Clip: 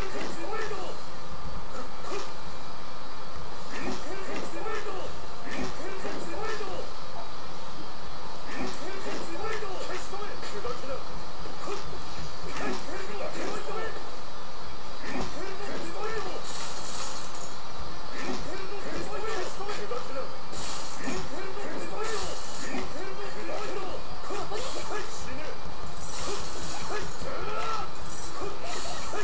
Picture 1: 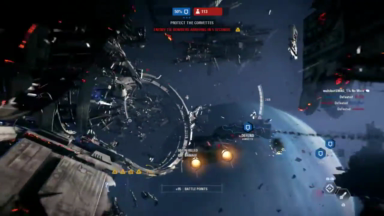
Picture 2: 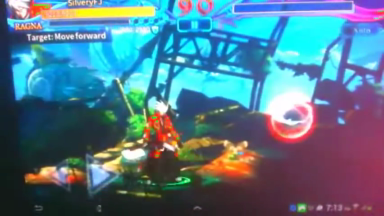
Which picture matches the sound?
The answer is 2